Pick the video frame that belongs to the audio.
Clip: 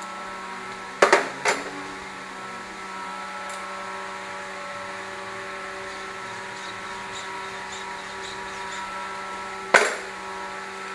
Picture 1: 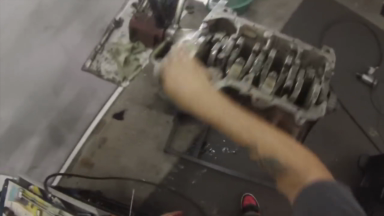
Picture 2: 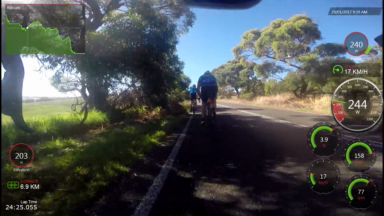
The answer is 1